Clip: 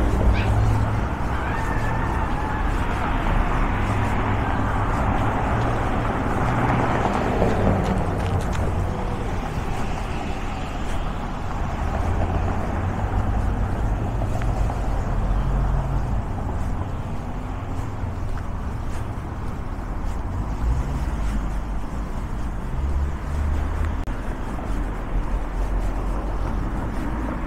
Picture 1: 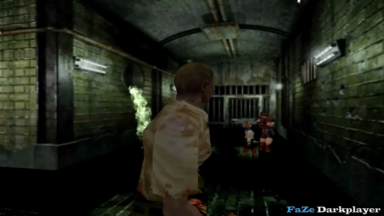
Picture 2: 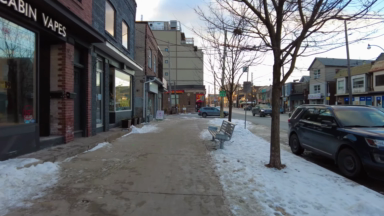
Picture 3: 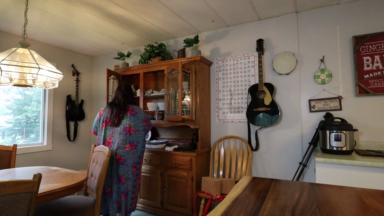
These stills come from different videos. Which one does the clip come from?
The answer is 2